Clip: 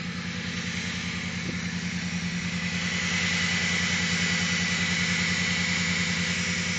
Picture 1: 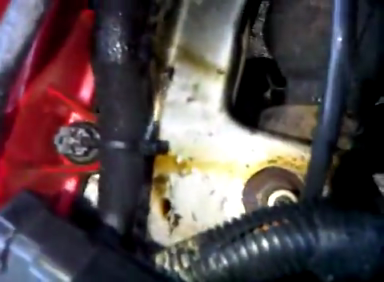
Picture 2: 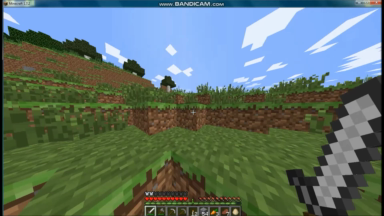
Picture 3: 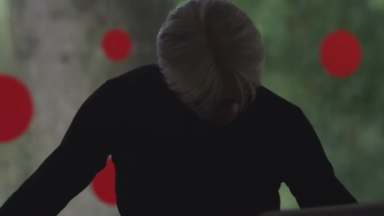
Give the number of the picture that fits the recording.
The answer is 1